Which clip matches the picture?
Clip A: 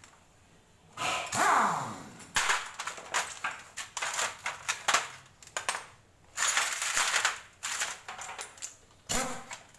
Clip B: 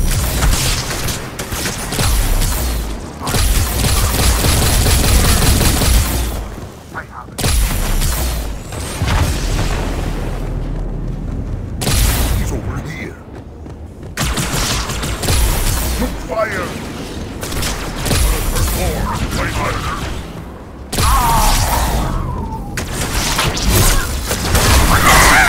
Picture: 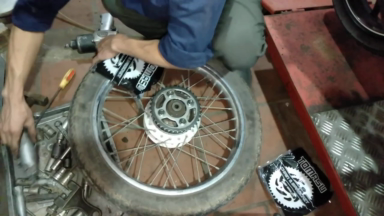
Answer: A